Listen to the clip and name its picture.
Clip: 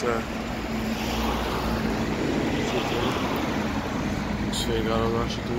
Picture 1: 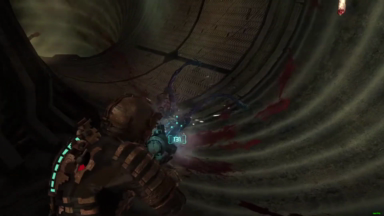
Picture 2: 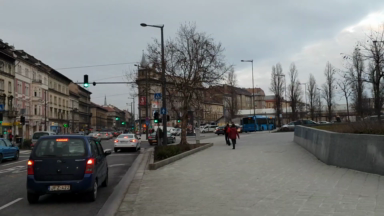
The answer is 2